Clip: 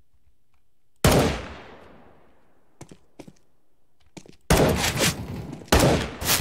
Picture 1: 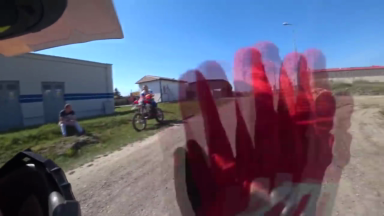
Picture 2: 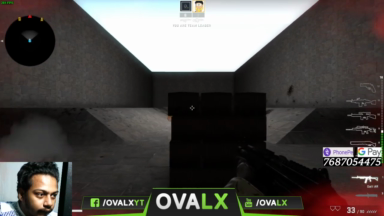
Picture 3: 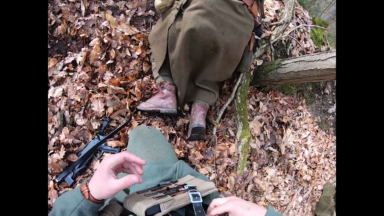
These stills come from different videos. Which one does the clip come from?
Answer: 2